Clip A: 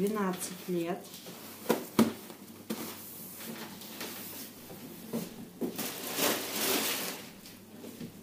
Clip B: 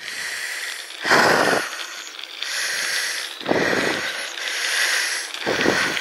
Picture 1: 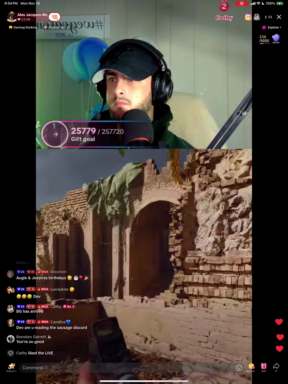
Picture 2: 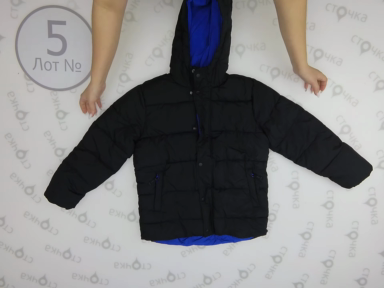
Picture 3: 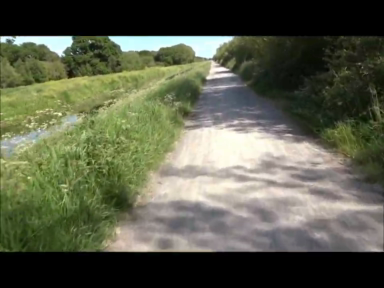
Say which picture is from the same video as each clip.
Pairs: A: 2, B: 3